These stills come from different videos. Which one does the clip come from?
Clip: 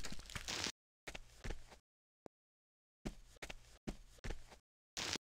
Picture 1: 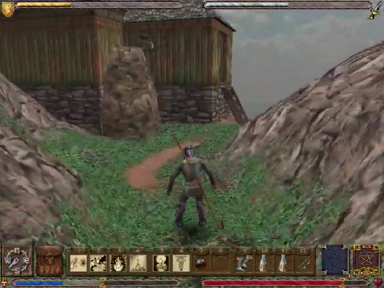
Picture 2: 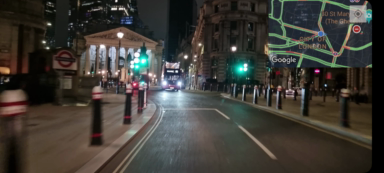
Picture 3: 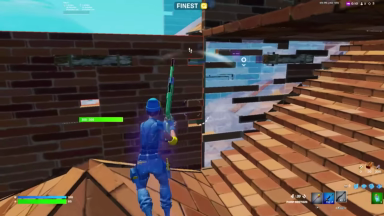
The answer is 1